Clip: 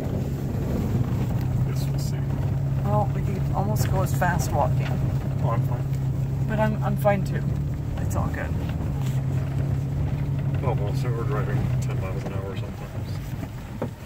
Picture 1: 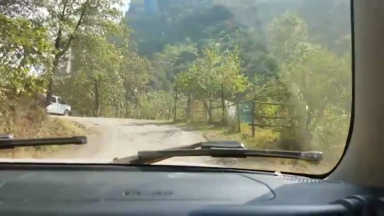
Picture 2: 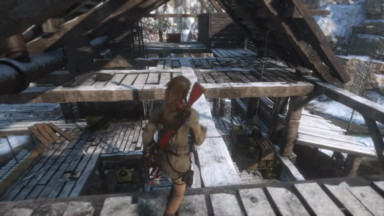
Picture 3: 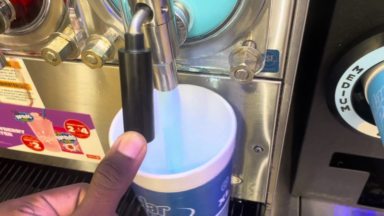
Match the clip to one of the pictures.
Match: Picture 1